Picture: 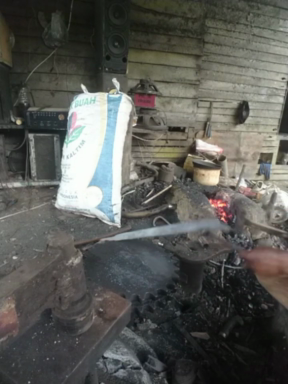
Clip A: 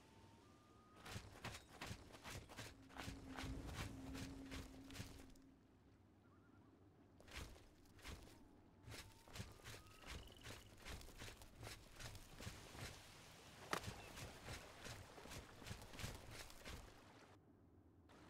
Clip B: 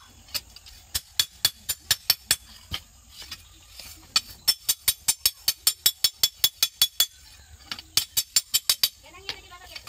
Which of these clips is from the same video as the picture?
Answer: B